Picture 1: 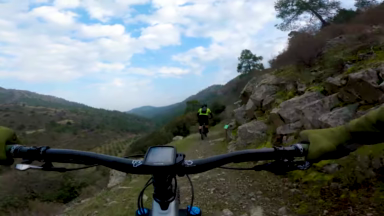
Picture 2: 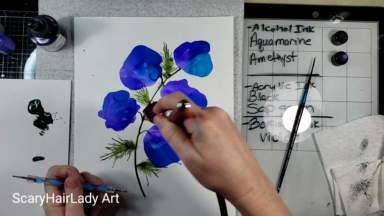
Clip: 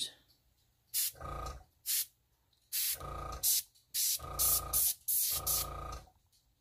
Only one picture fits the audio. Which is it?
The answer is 2